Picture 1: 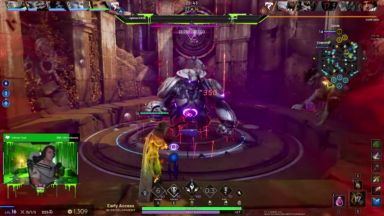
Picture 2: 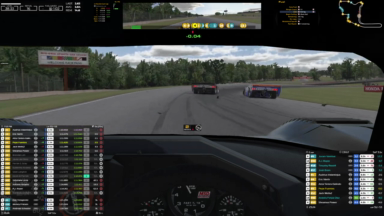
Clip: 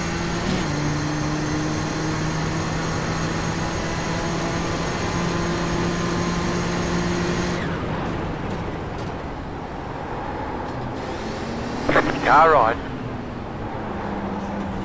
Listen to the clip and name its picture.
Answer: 2